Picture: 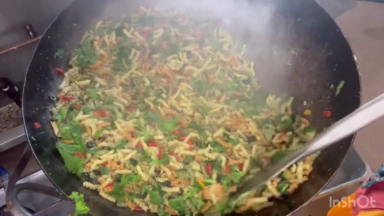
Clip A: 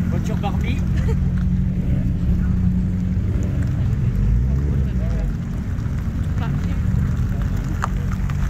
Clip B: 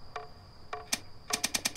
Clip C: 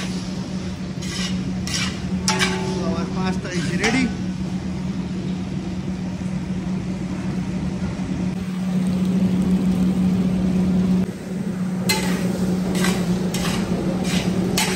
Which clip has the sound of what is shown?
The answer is C